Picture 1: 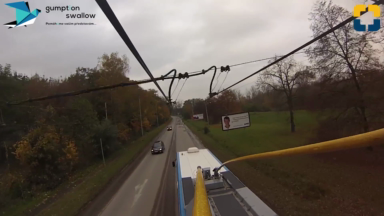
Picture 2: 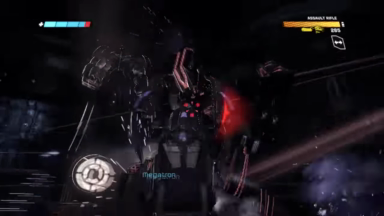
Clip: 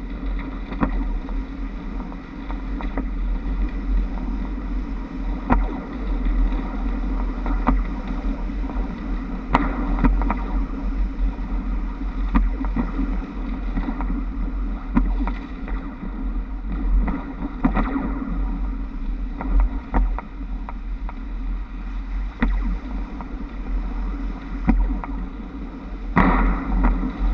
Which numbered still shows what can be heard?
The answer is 1